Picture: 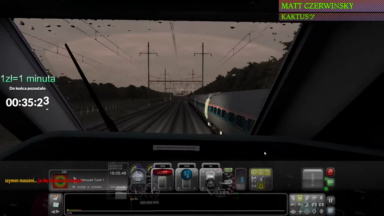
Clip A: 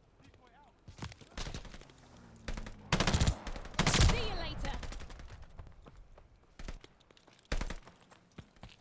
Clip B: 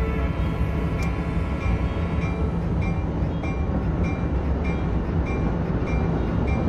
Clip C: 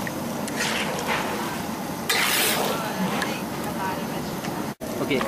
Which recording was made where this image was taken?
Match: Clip B